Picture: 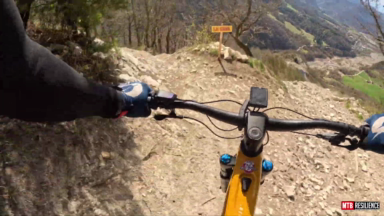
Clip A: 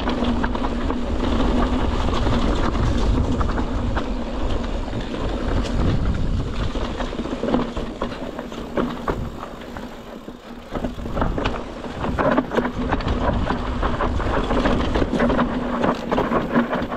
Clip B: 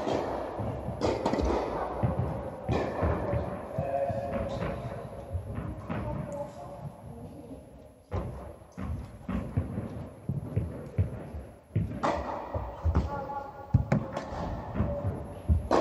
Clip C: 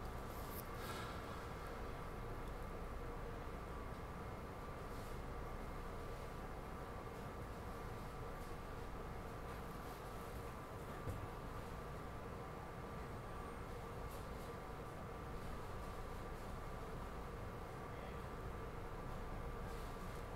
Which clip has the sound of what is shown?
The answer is A